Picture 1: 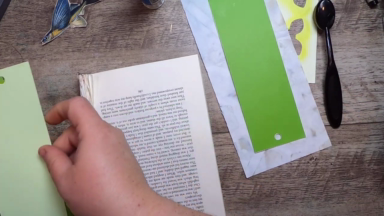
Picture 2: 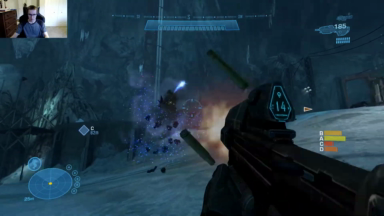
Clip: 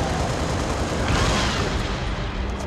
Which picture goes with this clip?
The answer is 2